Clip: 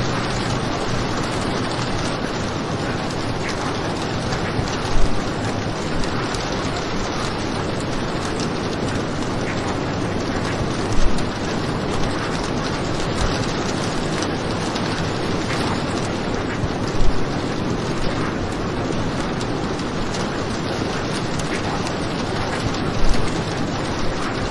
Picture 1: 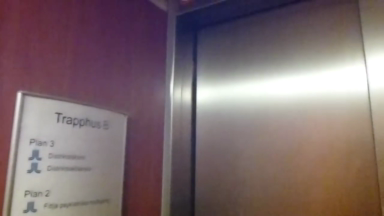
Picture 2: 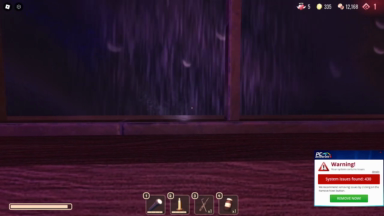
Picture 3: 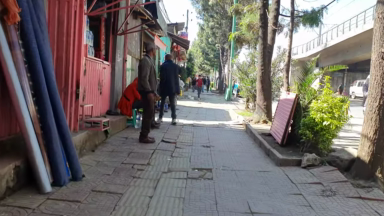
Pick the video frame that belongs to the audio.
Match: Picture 2